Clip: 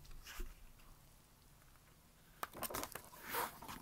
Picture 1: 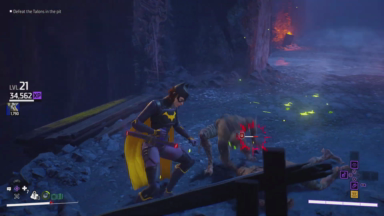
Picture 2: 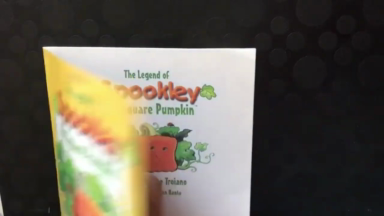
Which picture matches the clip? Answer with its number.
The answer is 2